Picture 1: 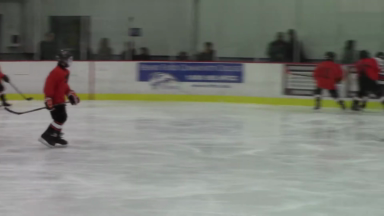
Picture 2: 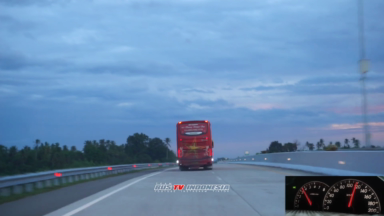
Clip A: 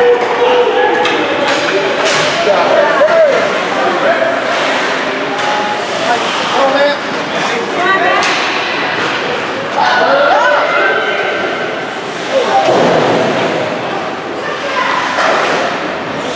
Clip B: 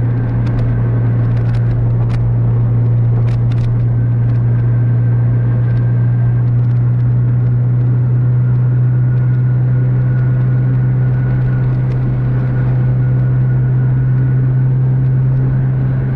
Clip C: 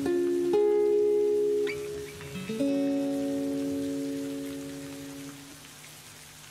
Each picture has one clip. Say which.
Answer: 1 A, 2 B